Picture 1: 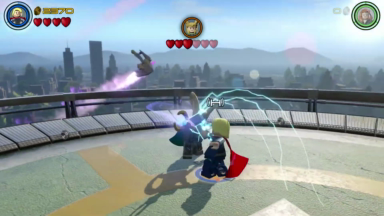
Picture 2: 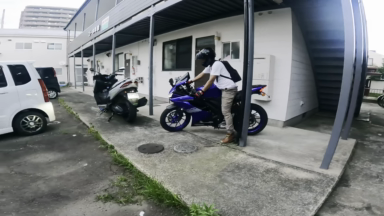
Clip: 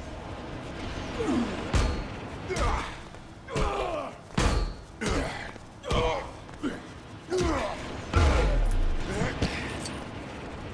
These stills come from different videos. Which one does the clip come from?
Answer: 1